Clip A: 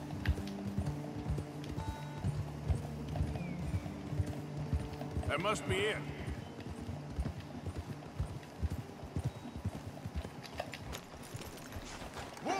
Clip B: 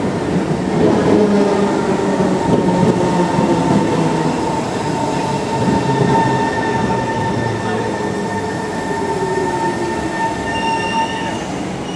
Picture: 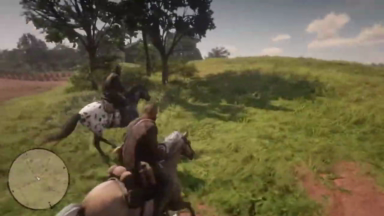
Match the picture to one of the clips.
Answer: A